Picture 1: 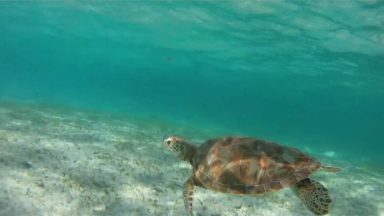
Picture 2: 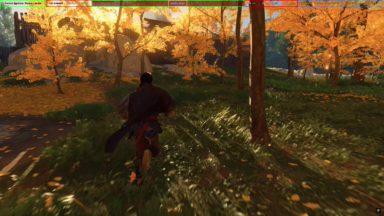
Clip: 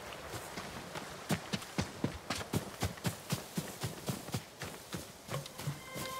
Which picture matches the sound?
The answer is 2